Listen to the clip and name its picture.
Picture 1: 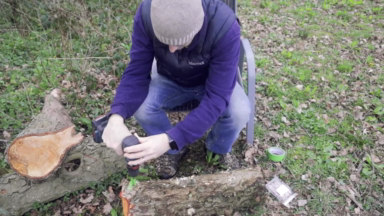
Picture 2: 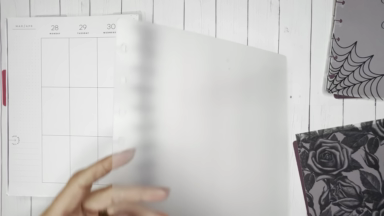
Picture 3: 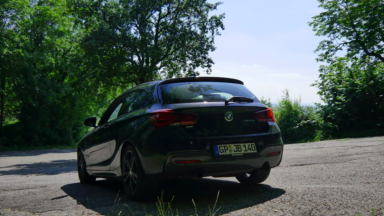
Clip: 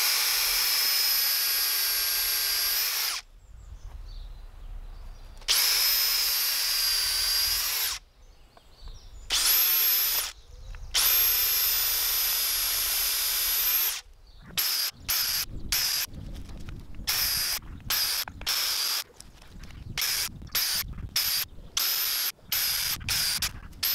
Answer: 1